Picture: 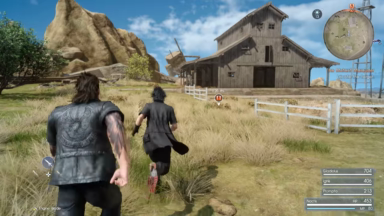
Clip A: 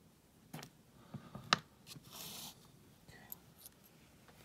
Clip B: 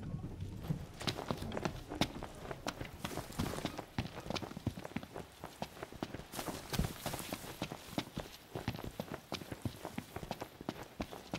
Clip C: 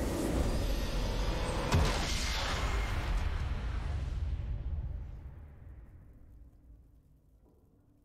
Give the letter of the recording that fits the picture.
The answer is B